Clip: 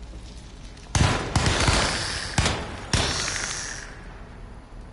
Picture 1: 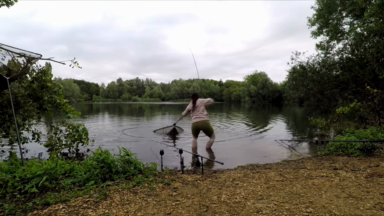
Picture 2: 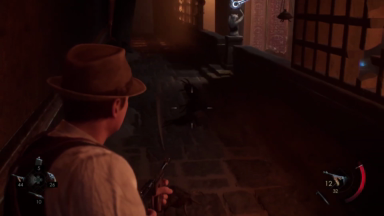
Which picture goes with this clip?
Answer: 2